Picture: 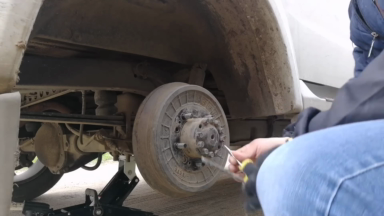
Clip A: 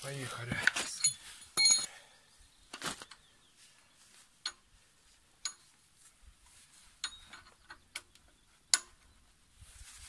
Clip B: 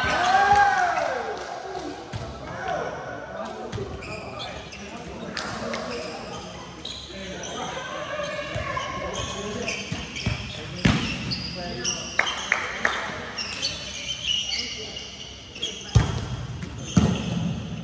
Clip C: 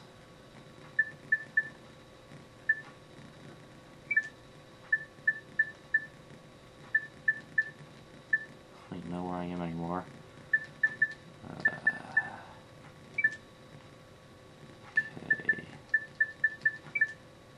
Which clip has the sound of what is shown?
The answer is A